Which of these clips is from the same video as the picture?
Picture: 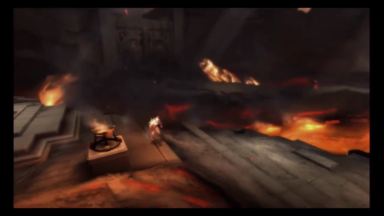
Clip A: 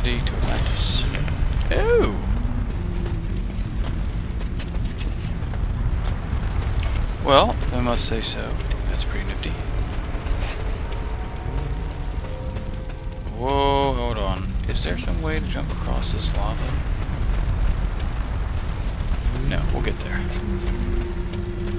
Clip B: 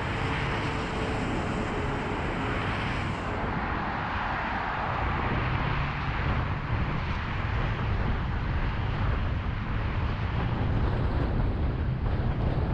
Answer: A